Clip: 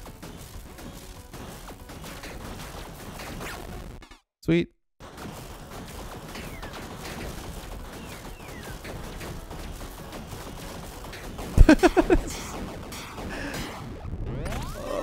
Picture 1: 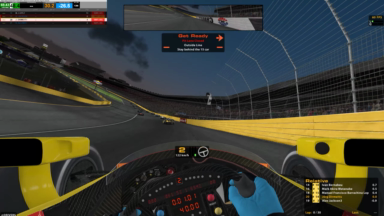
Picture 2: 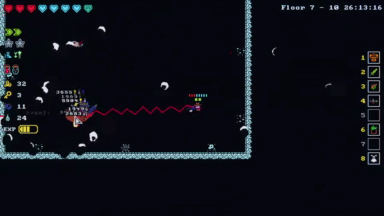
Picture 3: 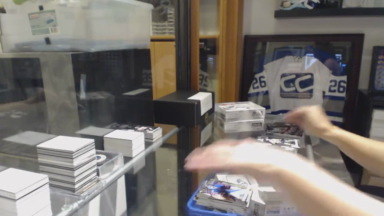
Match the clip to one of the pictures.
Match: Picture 2